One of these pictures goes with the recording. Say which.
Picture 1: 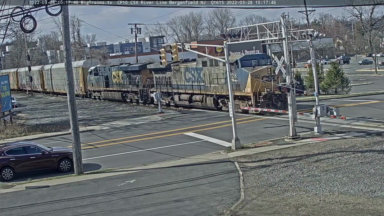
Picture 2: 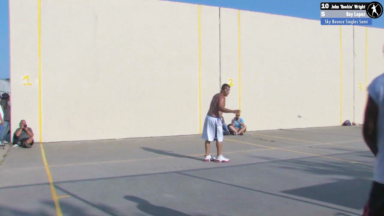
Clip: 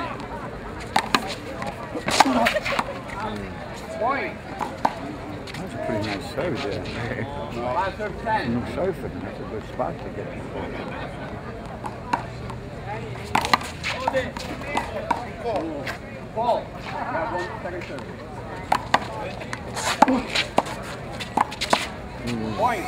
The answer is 2